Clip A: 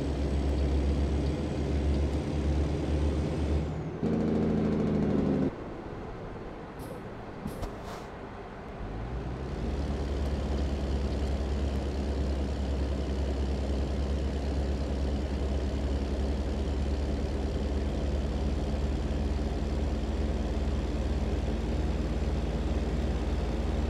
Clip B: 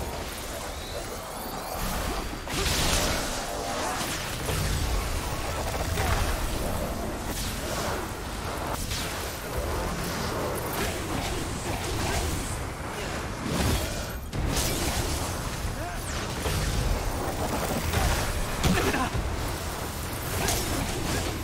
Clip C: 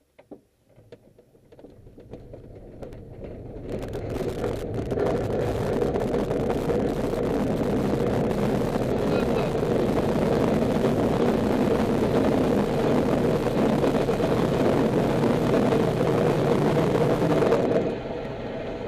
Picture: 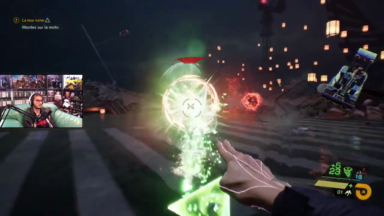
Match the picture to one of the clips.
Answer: B